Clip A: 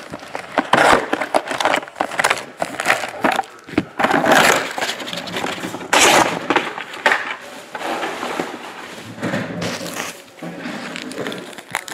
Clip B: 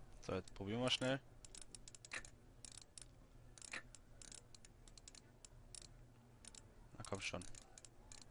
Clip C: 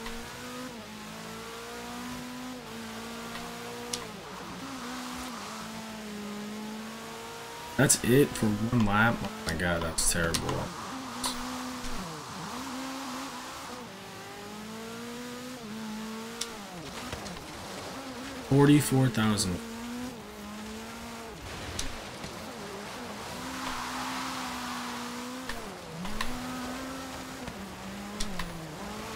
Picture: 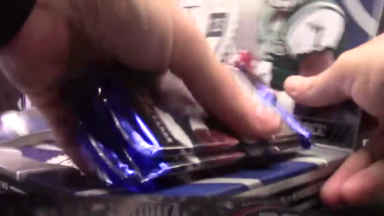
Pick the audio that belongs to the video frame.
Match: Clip A